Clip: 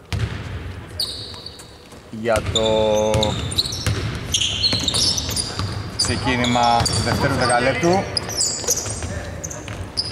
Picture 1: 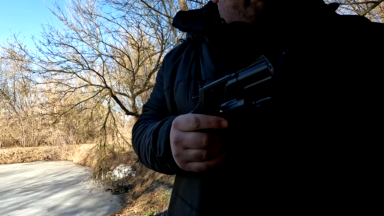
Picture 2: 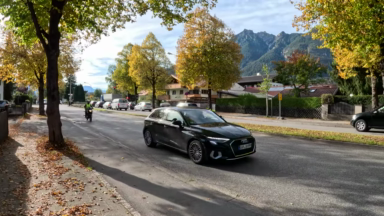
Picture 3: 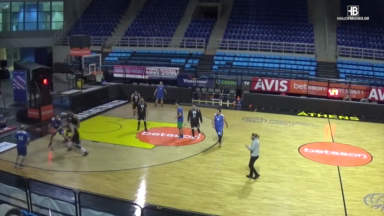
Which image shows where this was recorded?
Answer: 3